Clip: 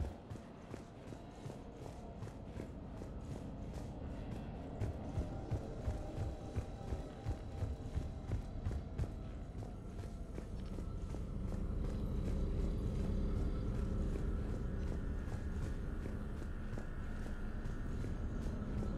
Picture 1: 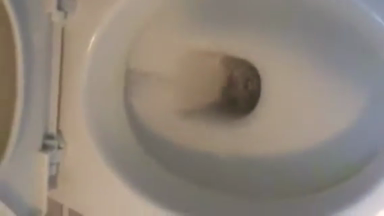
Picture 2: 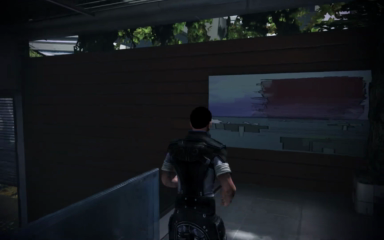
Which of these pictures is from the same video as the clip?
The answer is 2